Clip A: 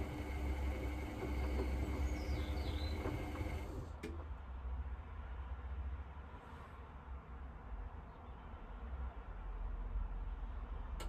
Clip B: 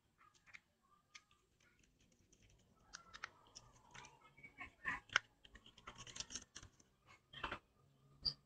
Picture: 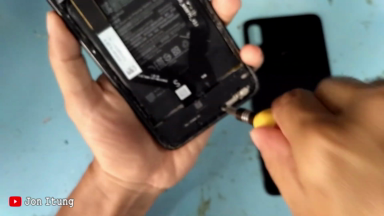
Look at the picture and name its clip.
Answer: B